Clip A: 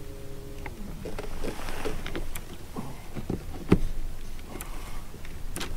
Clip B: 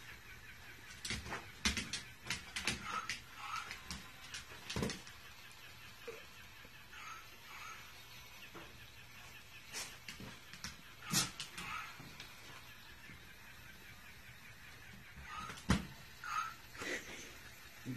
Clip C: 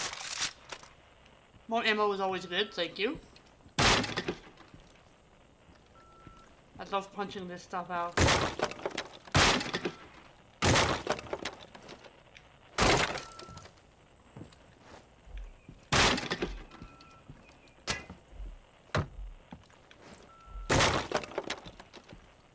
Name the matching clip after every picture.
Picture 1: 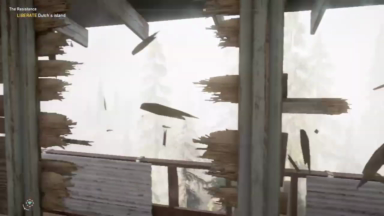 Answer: C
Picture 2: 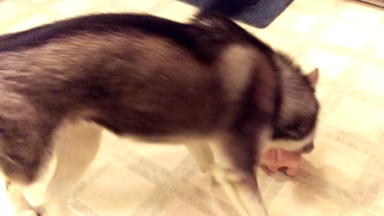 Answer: B